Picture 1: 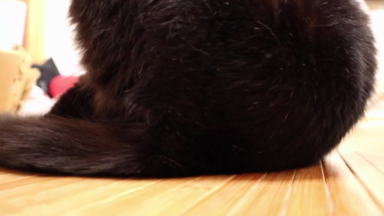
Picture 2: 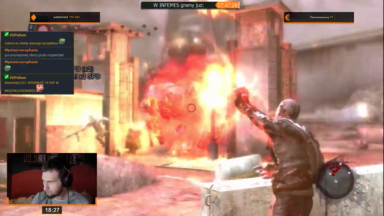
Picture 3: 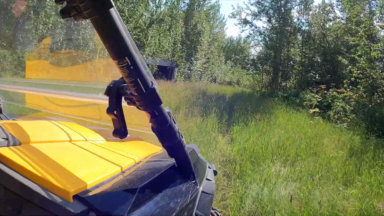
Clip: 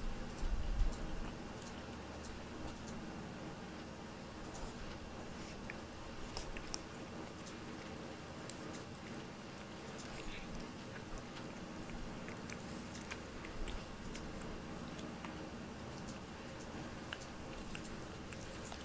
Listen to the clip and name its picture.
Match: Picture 1